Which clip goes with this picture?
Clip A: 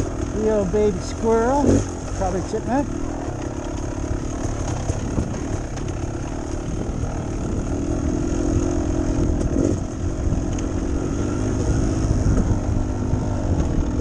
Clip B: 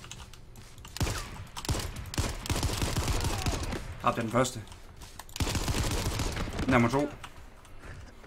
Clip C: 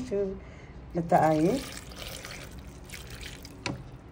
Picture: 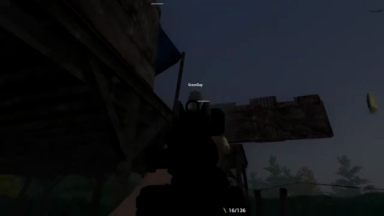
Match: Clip B